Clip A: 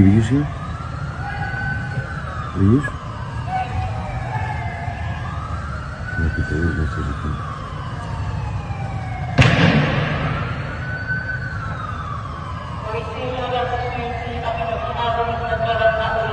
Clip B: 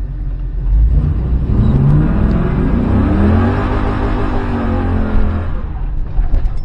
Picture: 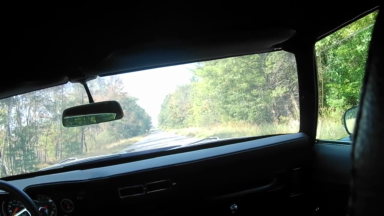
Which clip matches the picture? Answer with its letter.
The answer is B